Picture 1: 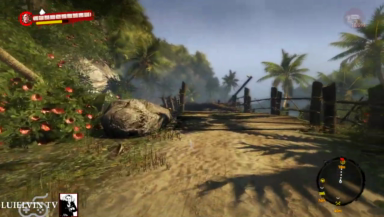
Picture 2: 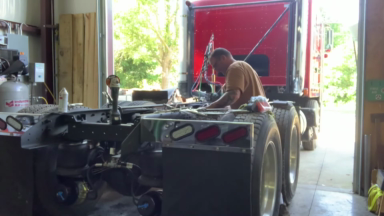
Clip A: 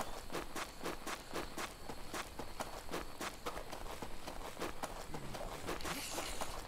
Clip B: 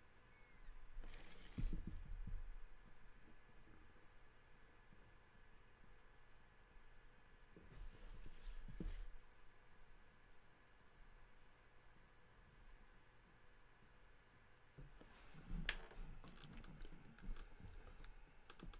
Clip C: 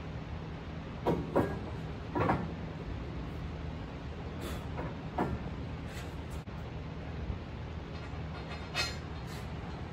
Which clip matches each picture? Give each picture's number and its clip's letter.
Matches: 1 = A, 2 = C